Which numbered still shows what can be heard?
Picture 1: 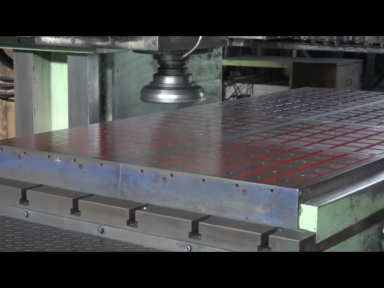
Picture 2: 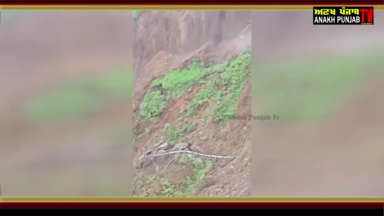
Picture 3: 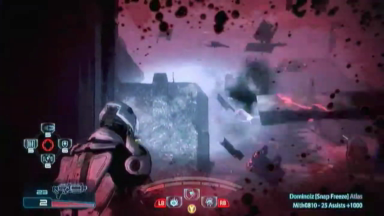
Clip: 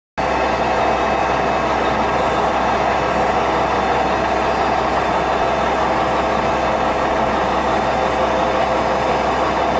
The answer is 1